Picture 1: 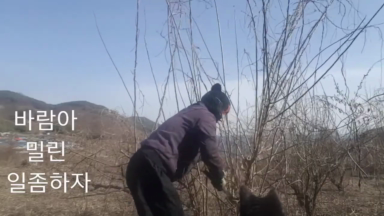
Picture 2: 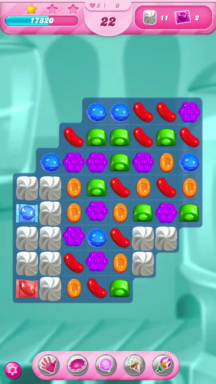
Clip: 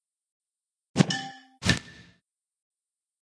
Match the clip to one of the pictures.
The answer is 2